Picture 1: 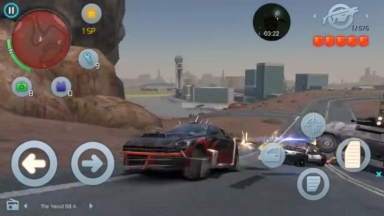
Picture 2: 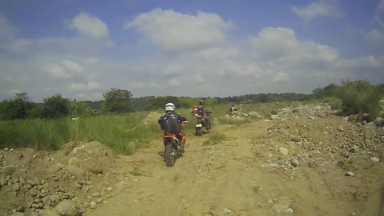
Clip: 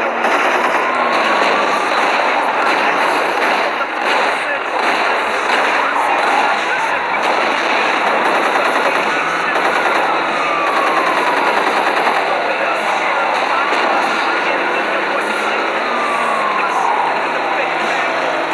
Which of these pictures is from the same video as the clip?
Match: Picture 1